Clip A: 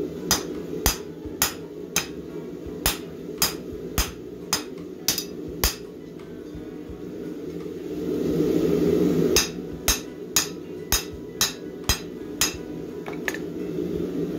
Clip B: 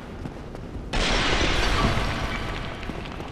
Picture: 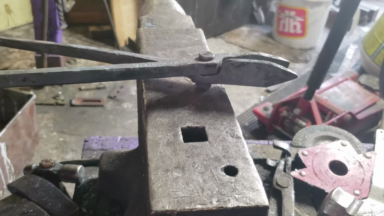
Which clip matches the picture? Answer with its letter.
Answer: A